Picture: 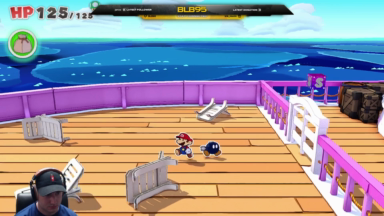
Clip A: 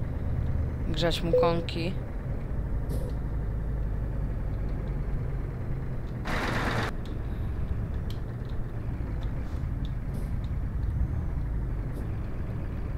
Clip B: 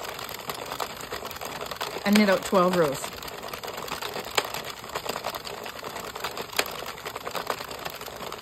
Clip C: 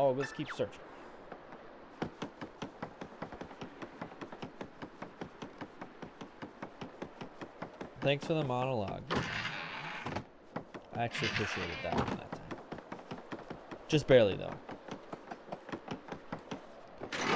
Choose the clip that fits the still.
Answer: C